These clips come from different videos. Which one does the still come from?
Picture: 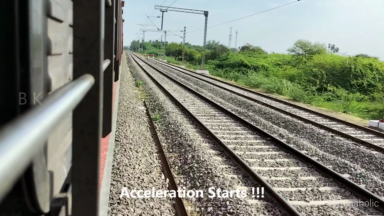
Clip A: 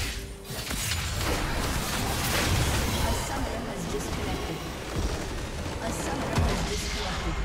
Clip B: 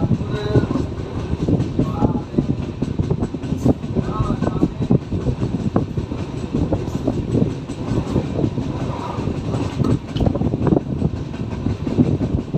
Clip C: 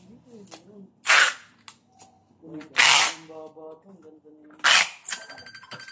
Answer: B